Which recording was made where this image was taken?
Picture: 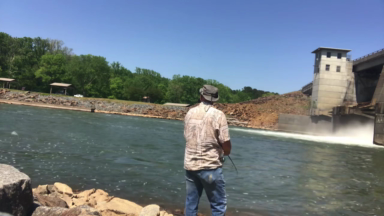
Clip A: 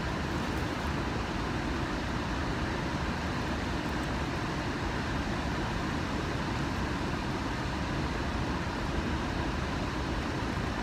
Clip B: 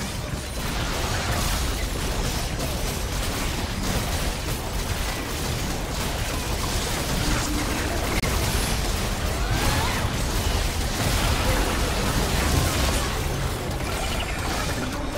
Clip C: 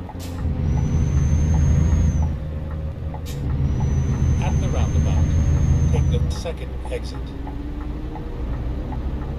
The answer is A